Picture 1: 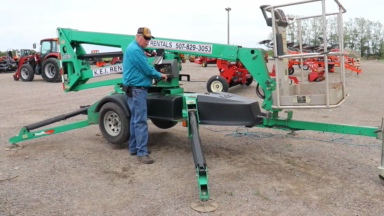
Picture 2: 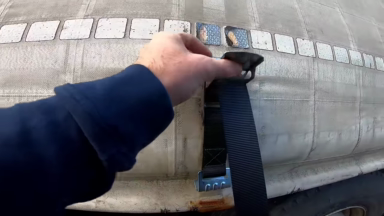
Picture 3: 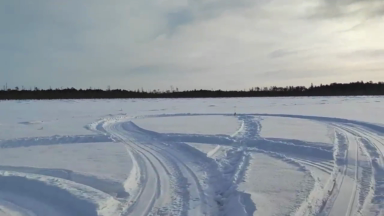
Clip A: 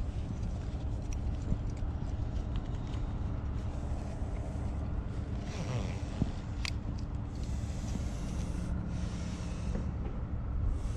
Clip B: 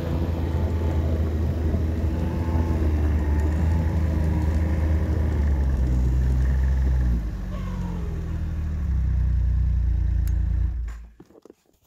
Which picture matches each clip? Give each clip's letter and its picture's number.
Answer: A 2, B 3